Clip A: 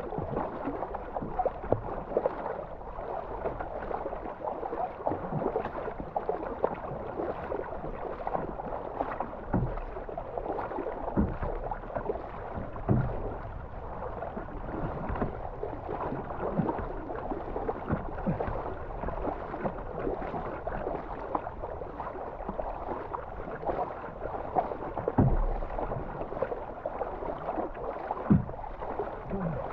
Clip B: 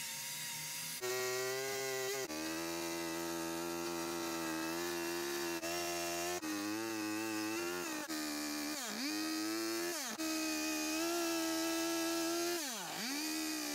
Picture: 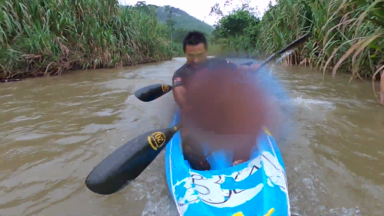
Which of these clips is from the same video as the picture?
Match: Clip A